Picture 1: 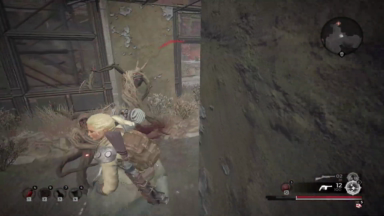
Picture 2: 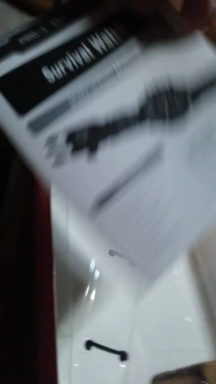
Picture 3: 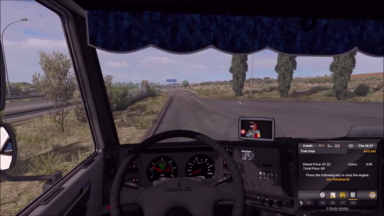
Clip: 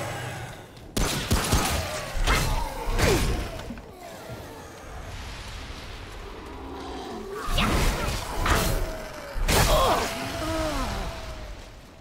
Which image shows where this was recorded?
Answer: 1